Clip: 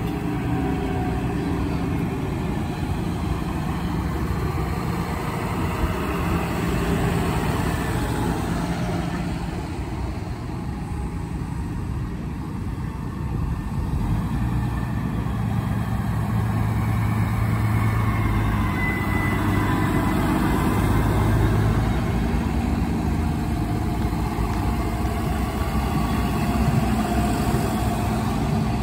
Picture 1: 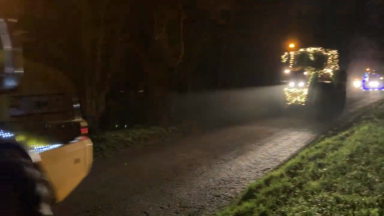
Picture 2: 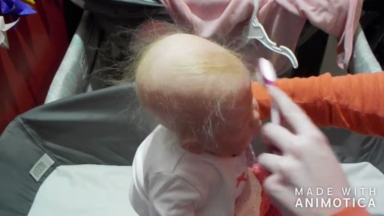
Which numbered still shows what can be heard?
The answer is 1